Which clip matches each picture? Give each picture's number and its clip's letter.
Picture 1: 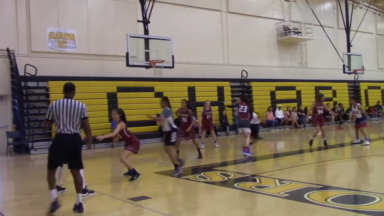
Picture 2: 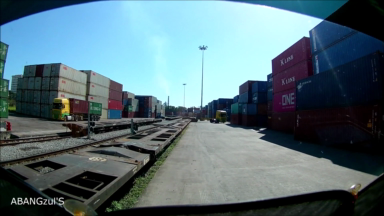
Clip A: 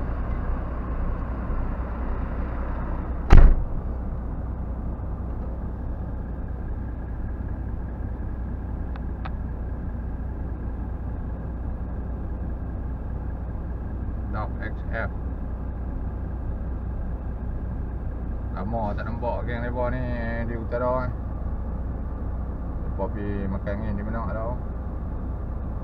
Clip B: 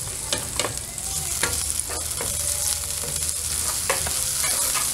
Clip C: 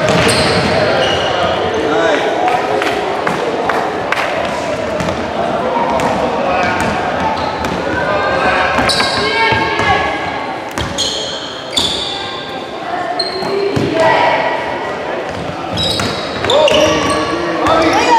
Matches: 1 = C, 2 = A